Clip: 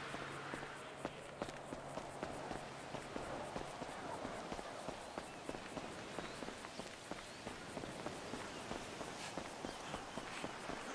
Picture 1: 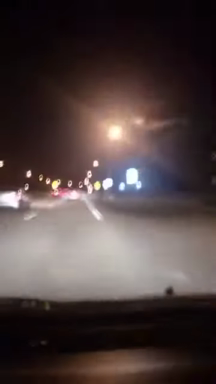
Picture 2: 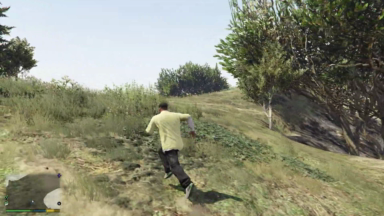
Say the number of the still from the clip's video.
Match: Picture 2